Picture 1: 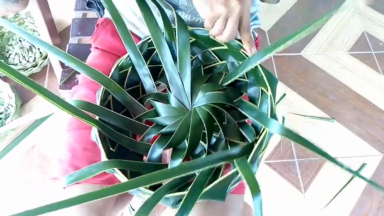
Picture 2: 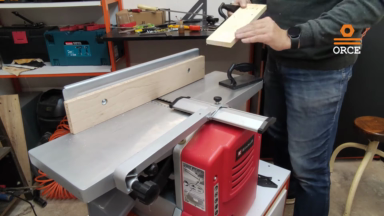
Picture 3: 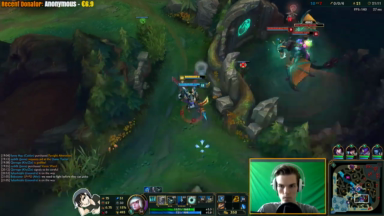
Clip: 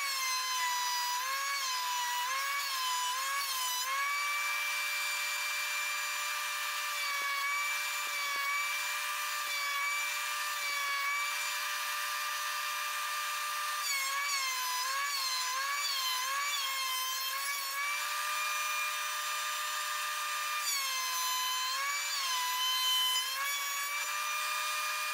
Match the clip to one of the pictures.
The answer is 2